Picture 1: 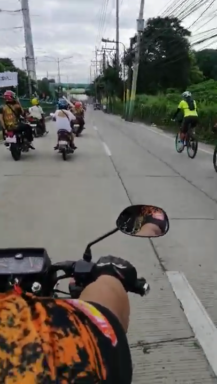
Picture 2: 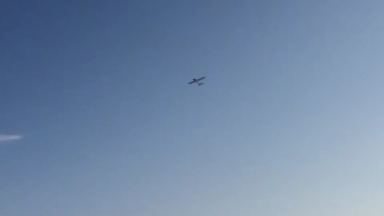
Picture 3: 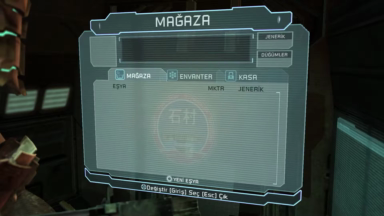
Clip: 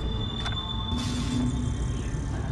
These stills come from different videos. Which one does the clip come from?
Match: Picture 3